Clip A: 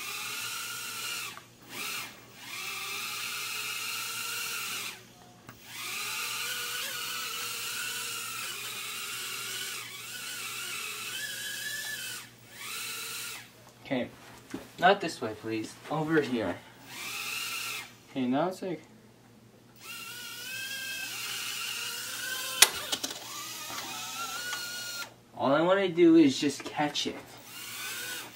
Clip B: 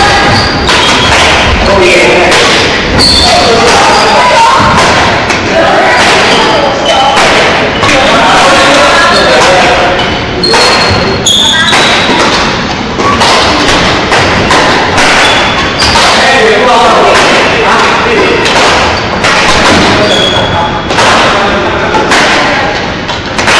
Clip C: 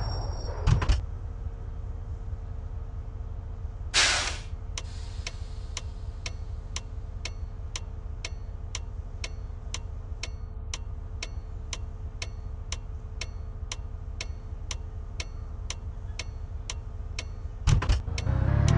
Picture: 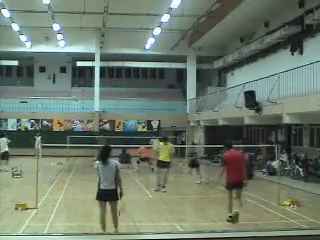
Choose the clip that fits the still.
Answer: B